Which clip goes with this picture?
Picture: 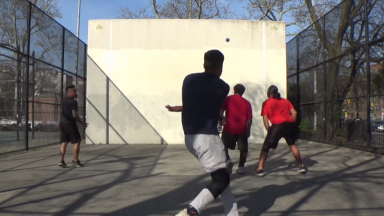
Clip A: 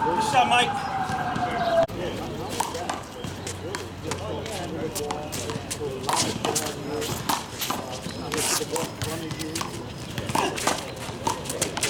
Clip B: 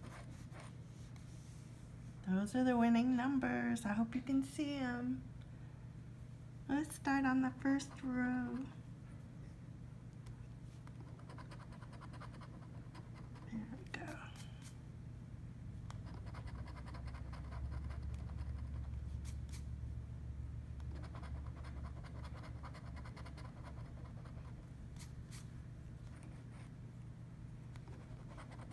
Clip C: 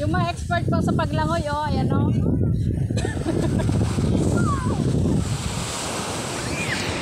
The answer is A